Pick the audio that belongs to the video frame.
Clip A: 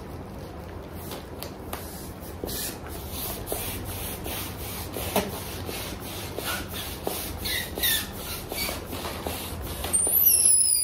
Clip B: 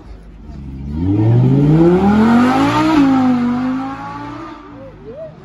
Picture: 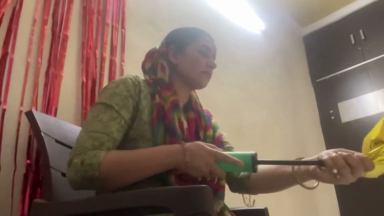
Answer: A